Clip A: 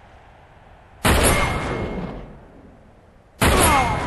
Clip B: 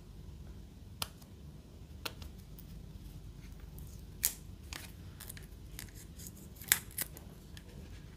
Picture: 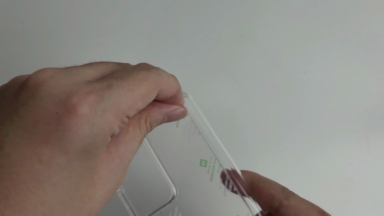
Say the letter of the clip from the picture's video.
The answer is B